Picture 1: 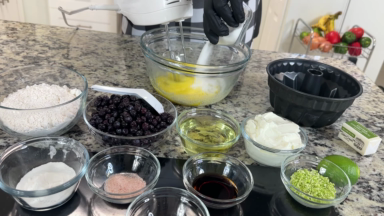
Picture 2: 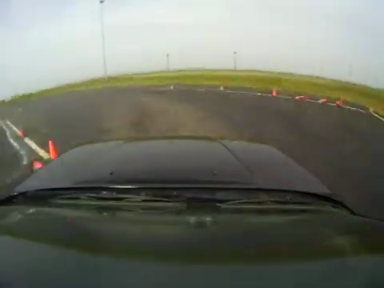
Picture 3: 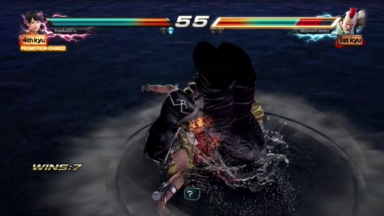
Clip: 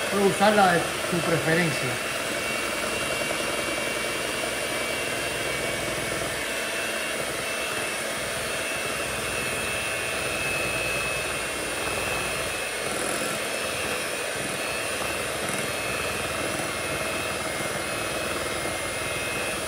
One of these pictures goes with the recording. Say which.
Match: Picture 1